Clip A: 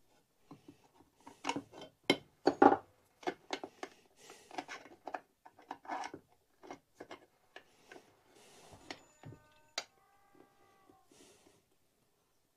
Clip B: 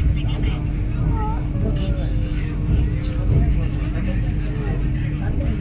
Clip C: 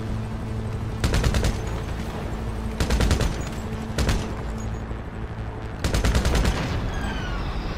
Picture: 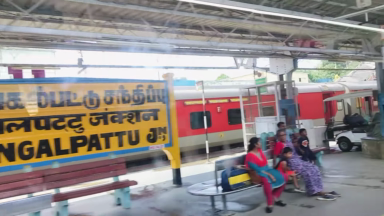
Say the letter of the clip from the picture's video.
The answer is B